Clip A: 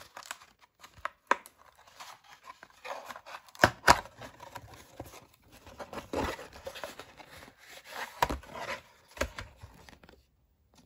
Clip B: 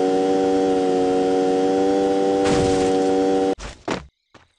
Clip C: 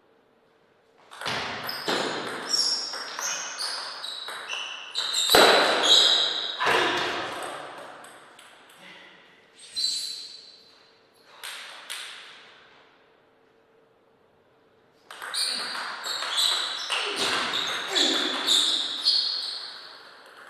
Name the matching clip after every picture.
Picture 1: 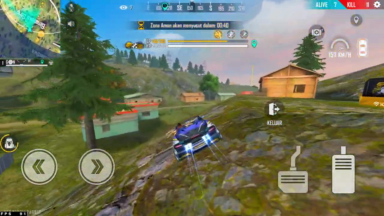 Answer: B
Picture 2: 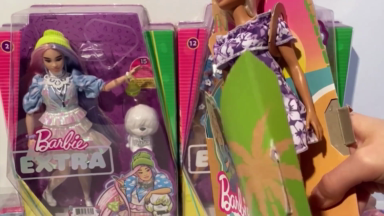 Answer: A